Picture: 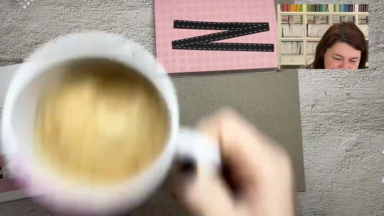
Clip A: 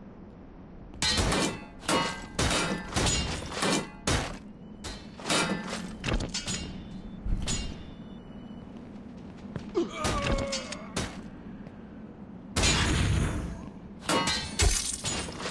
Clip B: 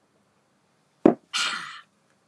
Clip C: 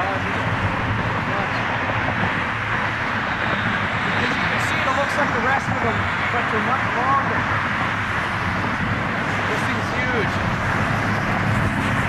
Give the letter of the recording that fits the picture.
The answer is B